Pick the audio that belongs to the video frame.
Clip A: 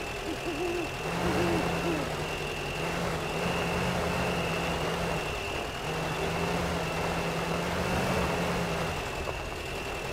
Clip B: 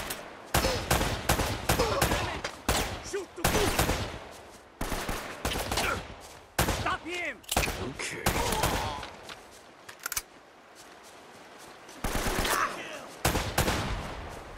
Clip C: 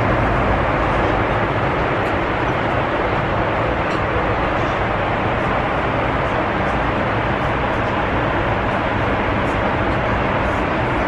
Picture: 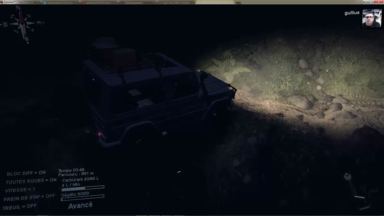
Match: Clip A